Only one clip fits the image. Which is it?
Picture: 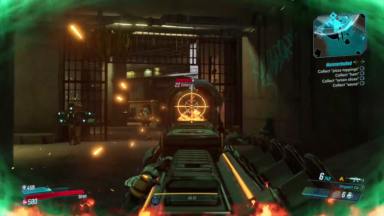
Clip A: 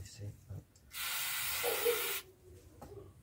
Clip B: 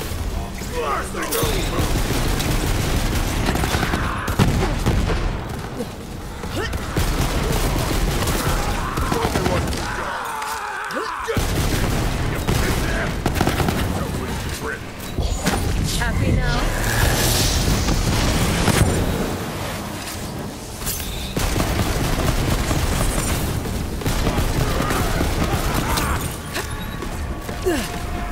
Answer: B